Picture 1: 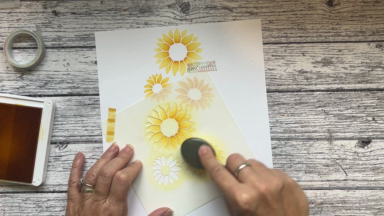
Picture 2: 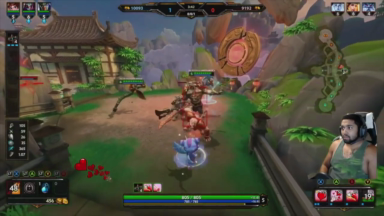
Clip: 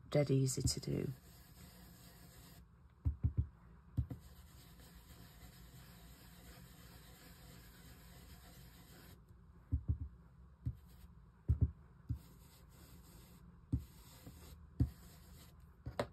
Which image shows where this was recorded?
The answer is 1